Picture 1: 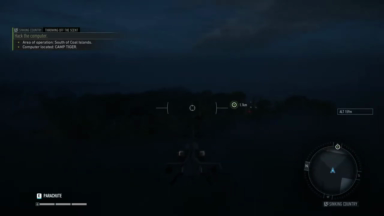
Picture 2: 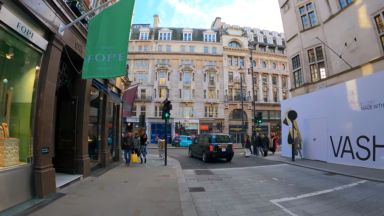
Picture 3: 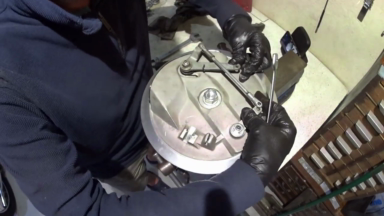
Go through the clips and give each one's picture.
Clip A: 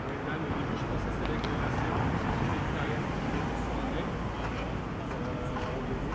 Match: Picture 2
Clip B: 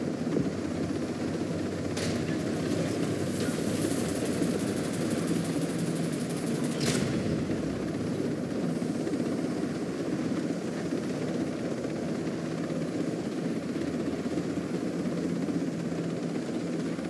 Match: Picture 1